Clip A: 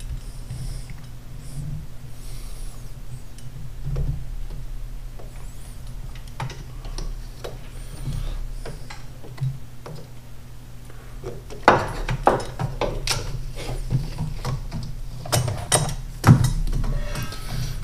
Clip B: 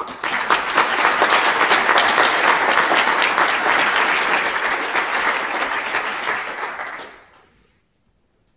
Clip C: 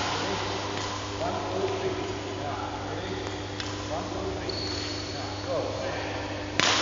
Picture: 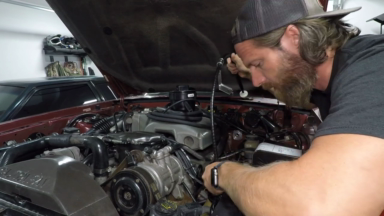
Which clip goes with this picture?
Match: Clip A